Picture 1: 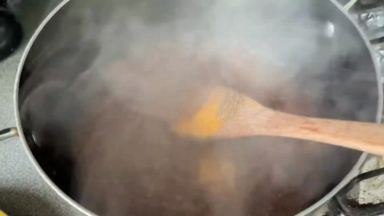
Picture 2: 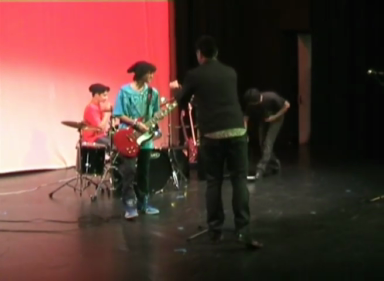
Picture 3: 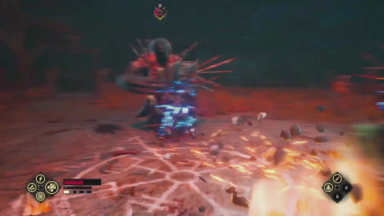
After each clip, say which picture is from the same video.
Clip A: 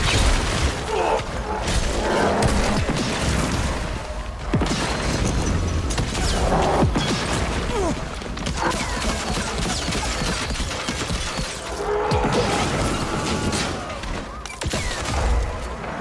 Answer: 3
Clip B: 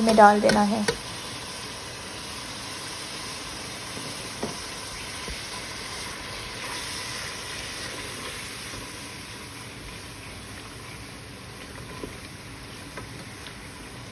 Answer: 1